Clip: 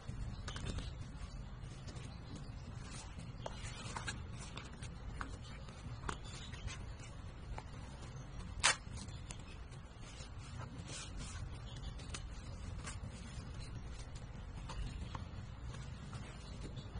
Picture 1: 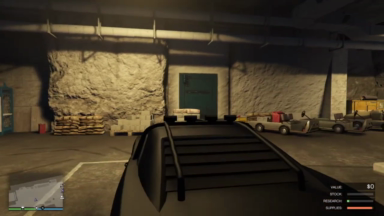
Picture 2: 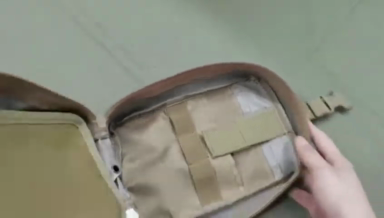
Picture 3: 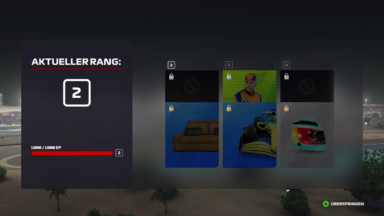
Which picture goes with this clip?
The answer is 2